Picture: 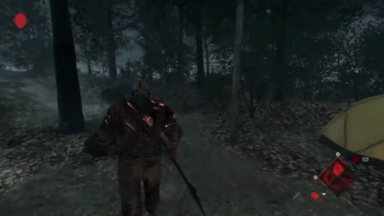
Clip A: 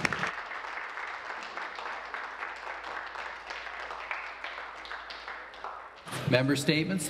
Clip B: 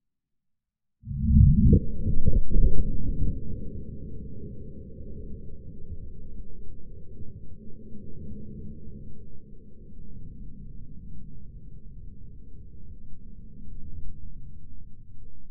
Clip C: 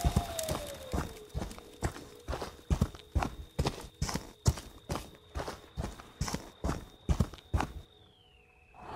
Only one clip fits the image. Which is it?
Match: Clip C